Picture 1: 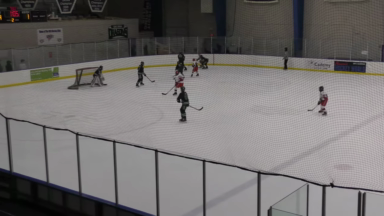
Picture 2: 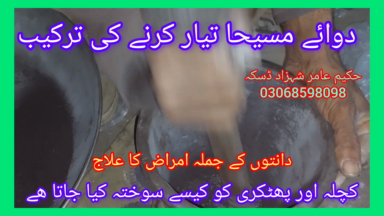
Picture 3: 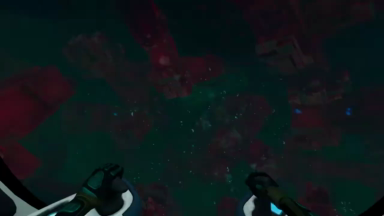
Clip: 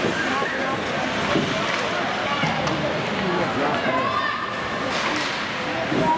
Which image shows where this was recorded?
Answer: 1